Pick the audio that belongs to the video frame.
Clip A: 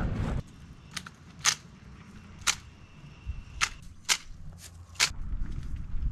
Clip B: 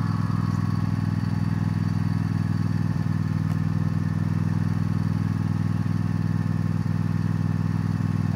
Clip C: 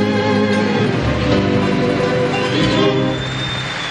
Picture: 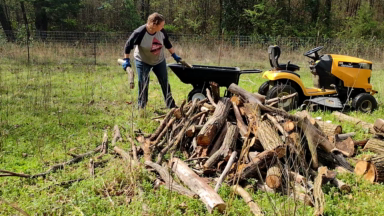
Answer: B